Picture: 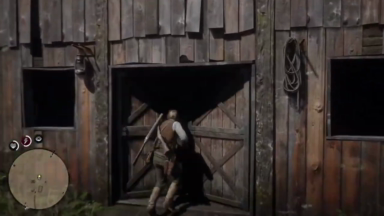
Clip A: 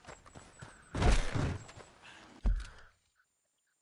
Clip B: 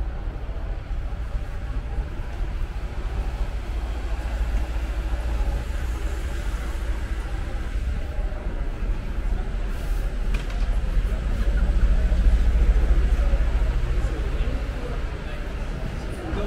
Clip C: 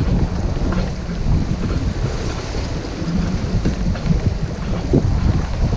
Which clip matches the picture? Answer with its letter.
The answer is A